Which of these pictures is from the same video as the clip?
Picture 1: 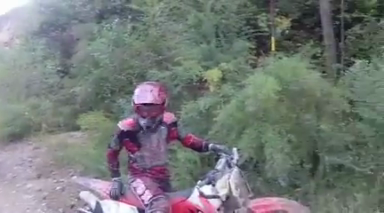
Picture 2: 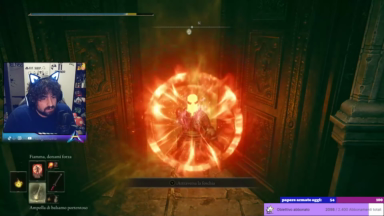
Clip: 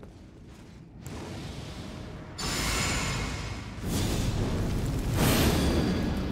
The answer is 2